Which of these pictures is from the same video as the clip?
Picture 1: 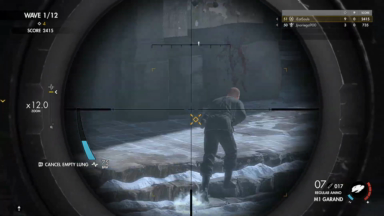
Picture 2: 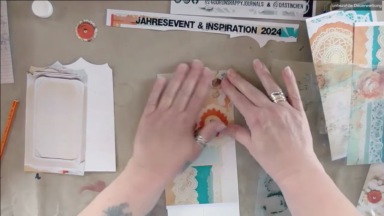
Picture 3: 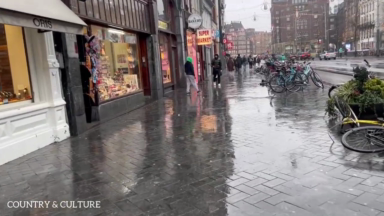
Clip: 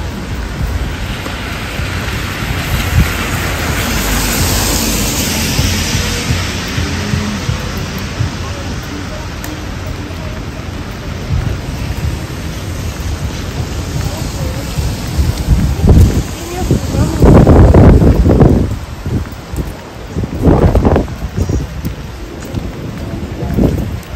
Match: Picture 3